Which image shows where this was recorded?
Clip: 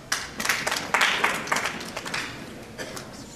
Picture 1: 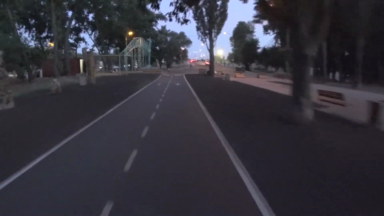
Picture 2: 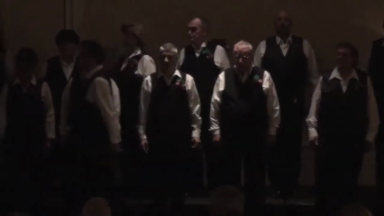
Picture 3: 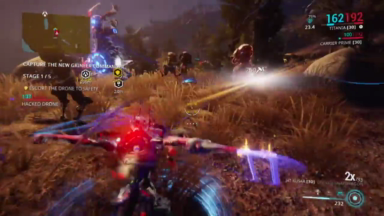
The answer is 2